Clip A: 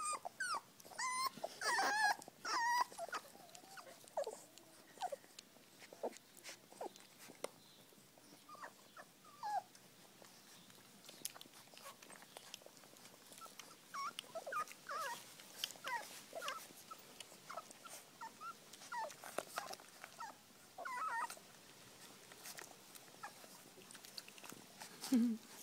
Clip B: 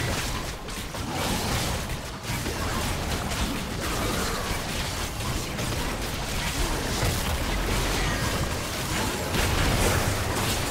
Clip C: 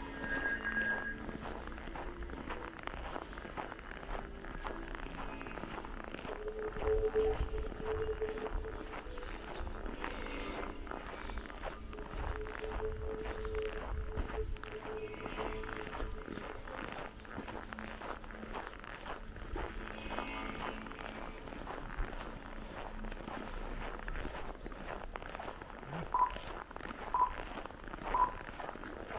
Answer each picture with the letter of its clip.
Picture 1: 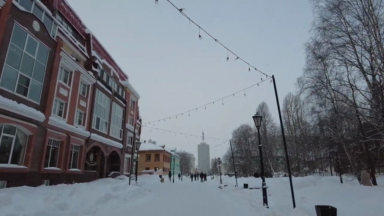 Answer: C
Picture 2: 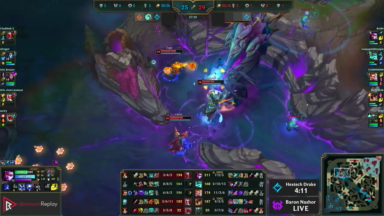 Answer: B